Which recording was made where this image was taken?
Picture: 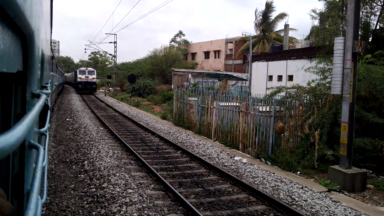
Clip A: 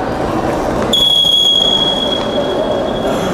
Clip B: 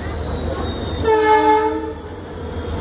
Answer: B